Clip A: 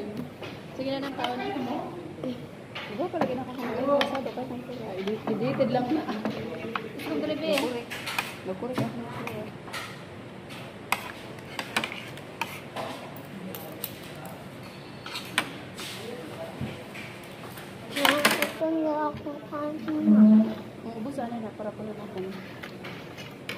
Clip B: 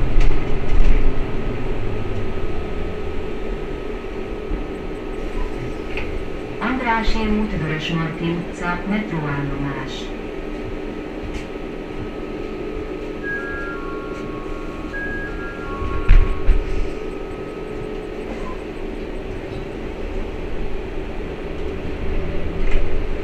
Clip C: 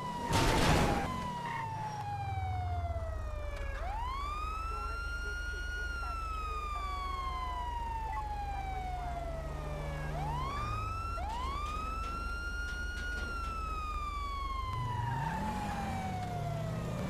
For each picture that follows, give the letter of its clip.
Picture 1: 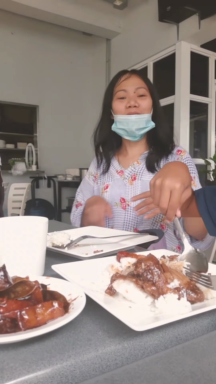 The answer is A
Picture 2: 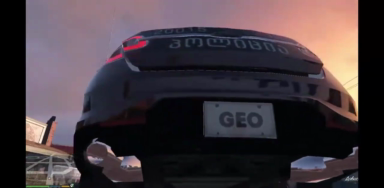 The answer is C